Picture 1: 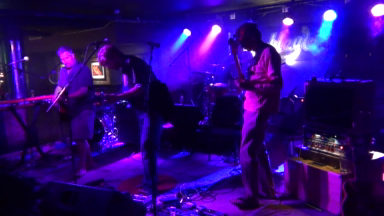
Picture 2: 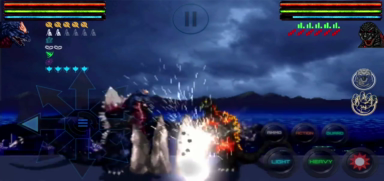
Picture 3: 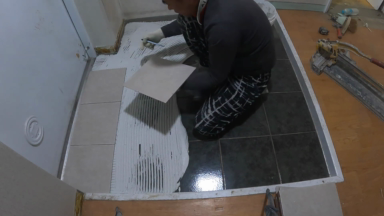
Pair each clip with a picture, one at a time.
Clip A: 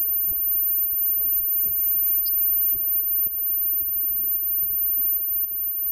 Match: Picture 1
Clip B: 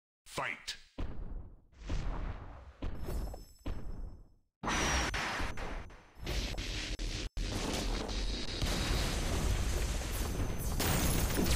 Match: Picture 2